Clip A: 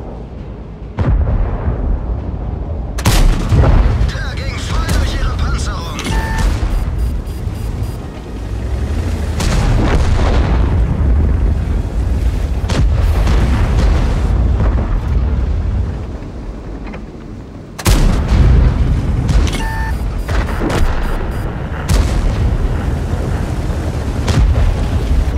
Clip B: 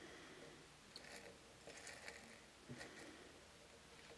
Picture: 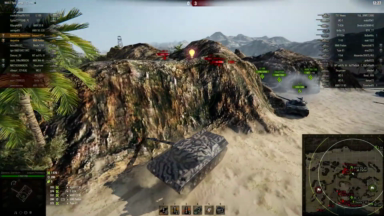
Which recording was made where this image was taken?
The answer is A